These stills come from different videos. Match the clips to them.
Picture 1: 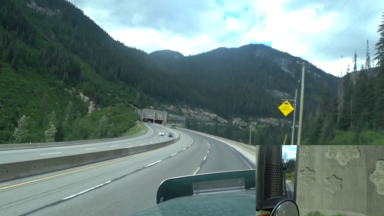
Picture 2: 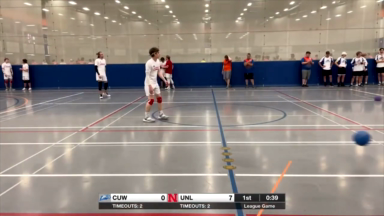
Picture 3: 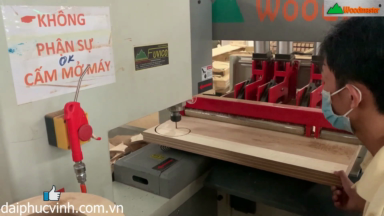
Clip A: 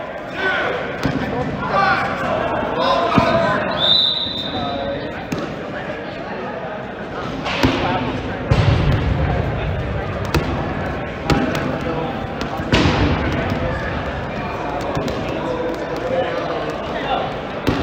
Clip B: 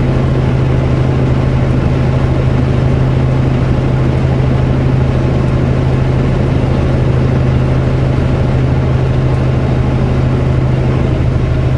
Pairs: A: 2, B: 1